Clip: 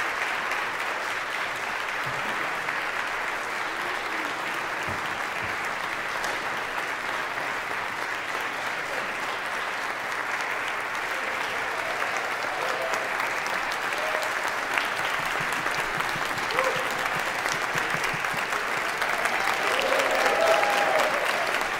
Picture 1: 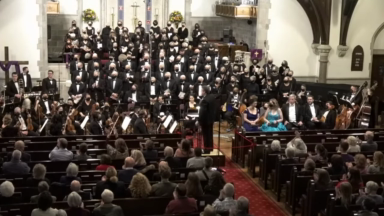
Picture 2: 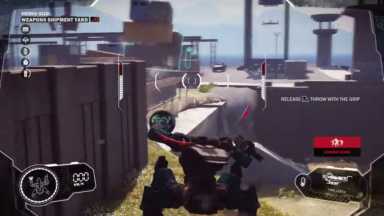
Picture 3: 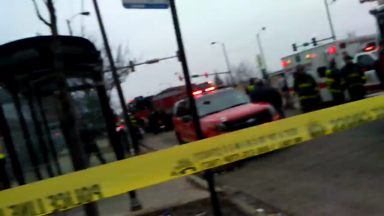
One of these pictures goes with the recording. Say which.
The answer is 1